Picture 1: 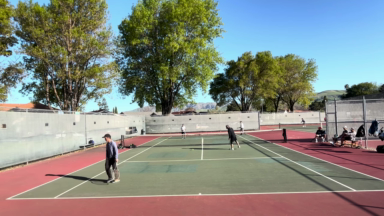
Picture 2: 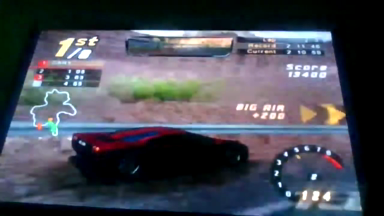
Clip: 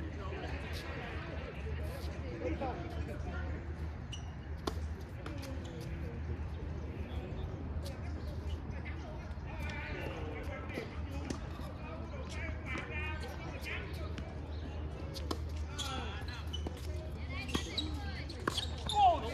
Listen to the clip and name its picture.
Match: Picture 1